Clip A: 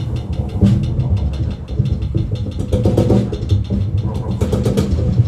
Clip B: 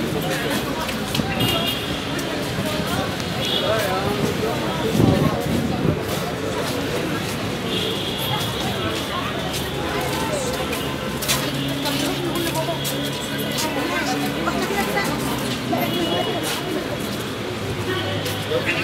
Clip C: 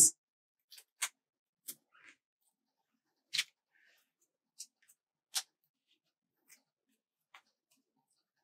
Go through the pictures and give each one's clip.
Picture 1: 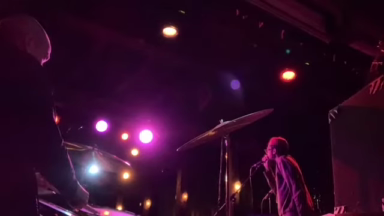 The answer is A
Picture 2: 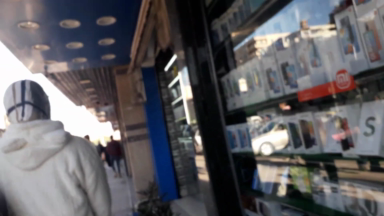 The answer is B